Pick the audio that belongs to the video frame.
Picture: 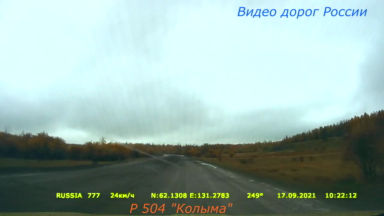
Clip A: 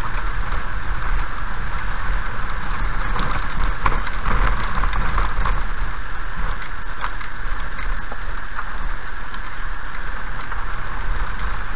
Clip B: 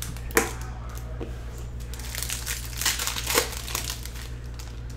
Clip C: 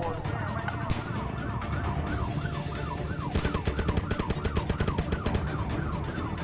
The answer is A